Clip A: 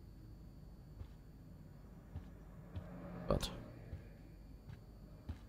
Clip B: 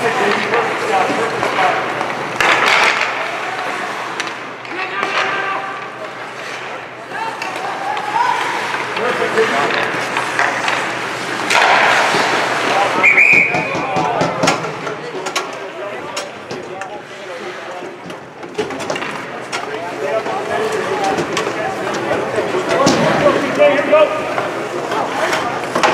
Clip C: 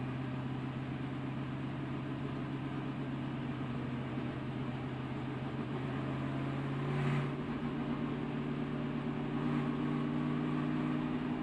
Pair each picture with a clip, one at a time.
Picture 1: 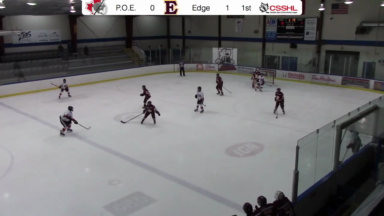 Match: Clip B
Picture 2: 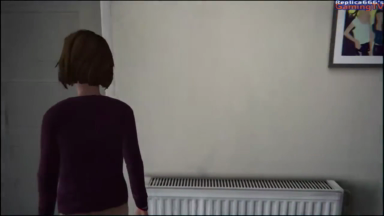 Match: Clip A